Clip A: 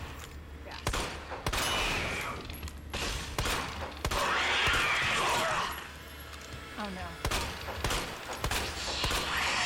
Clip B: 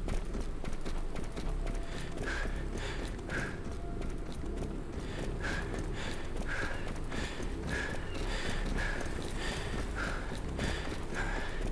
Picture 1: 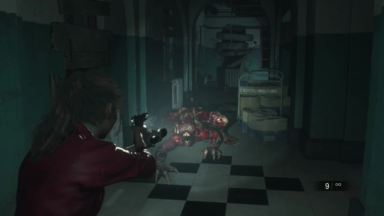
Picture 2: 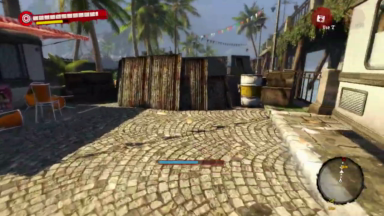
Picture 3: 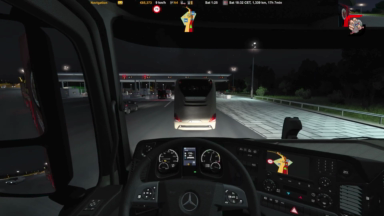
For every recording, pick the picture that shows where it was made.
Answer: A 1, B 2